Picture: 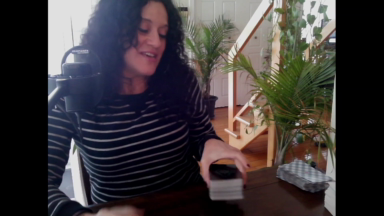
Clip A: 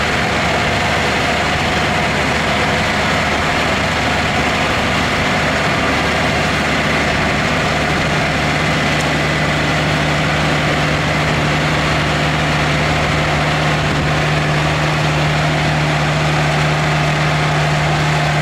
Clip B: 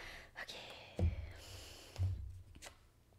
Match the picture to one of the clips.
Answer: B